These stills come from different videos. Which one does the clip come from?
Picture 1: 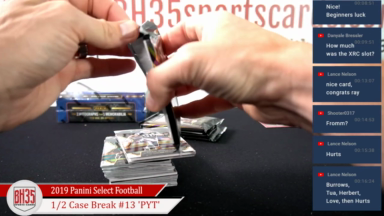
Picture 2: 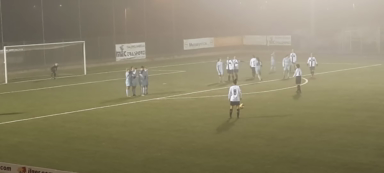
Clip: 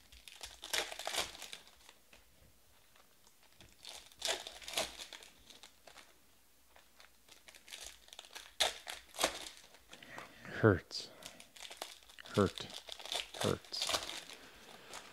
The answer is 1